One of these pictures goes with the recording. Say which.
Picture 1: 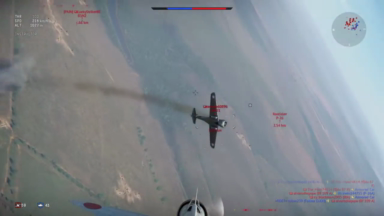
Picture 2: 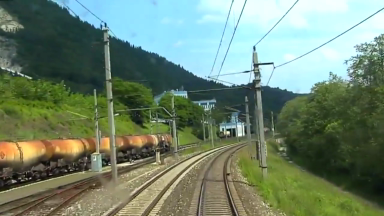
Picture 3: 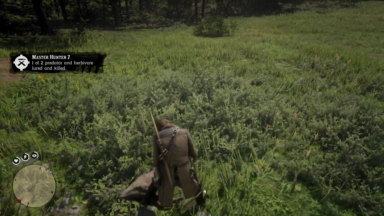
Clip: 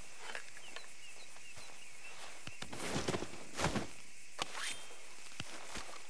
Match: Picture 3